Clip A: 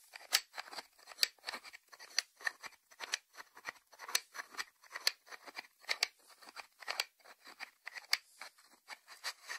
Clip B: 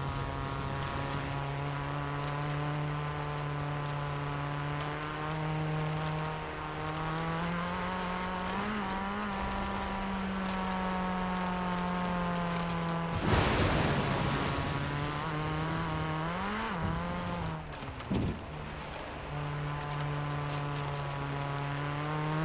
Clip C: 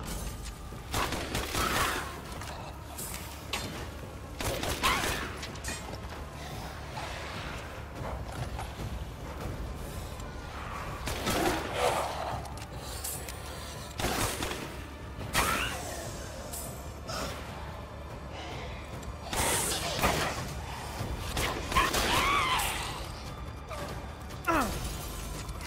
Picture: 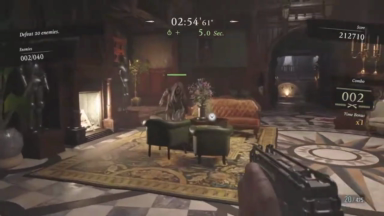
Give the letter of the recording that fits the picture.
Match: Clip C